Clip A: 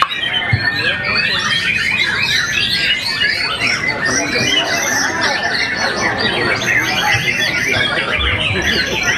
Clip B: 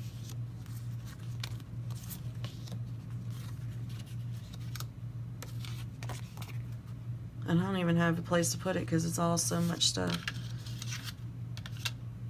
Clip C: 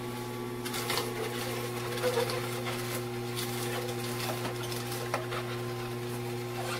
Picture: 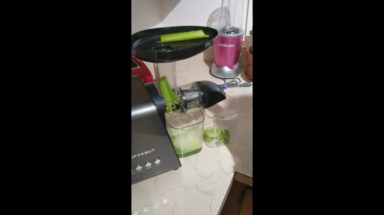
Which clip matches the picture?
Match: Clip C